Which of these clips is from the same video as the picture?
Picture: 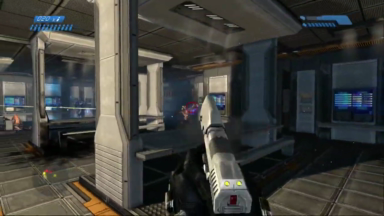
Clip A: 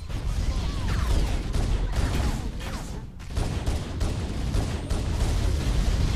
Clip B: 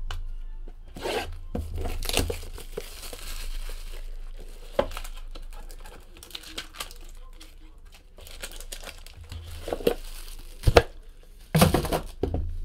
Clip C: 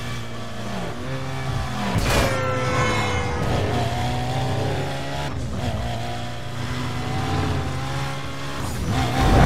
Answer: A